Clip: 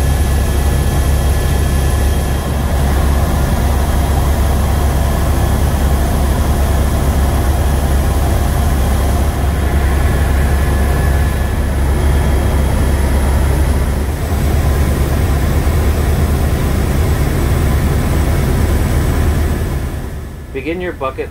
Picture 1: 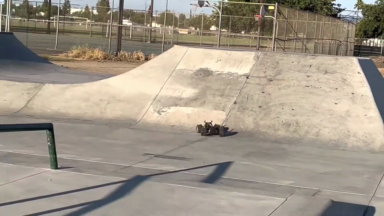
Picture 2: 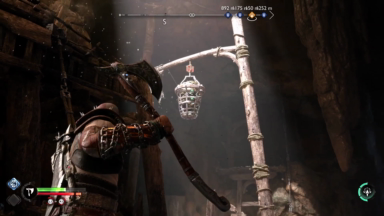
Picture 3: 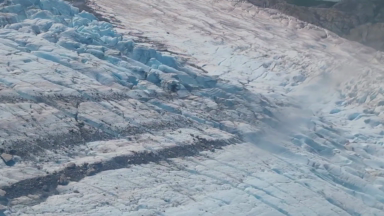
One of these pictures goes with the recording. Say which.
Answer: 3